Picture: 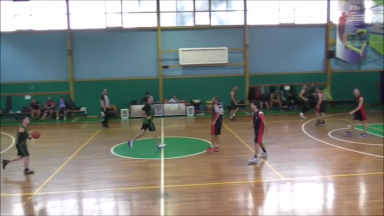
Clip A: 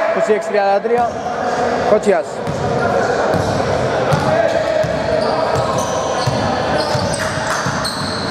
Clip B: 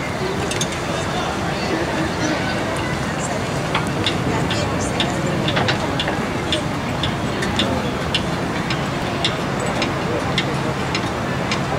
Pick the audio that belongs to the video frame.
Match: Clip A